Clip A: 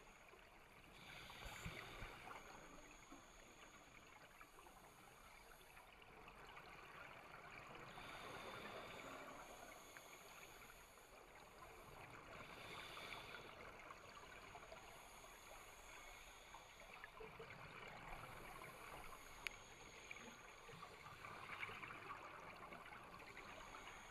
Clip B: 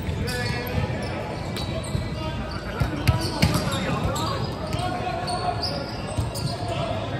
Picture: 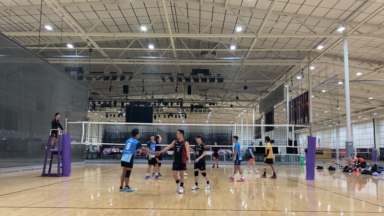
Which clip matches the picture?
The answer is B